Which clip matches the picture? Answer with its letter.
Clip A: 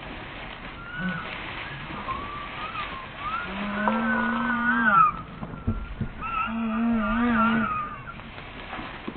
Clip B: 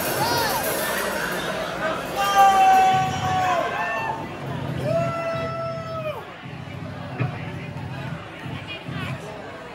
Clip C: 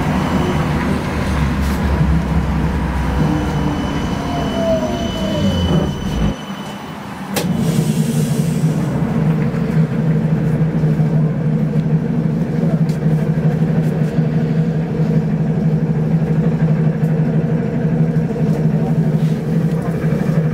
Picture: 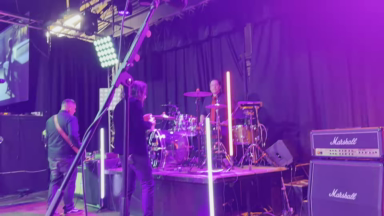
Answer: B